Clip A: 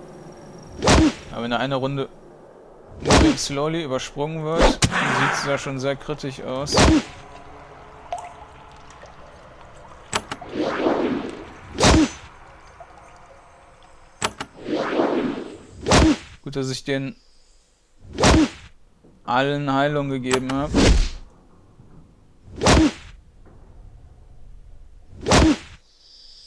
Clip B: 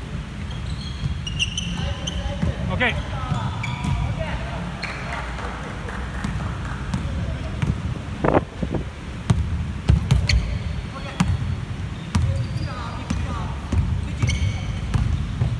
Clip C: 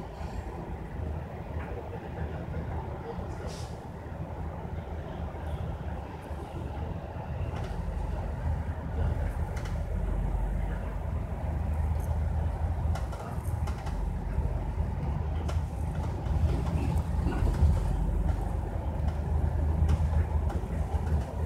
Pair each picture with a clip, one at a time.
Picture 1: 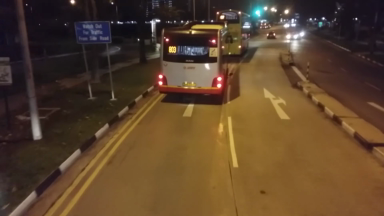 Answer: C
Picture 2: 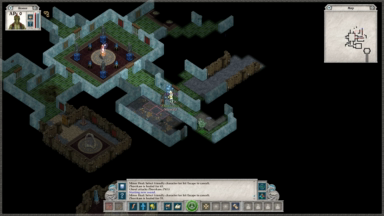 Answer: A